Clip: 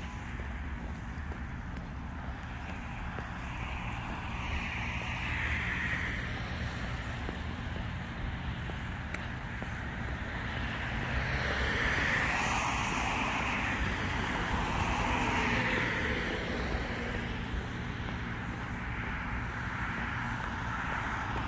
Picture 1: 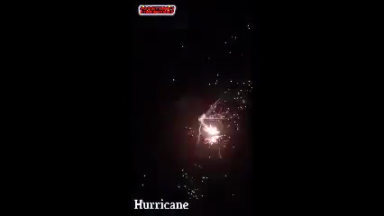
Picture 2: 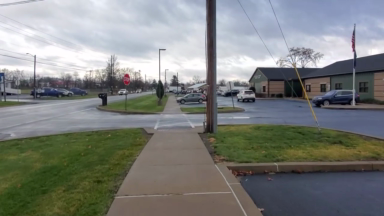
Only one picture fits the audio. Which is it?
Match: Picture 2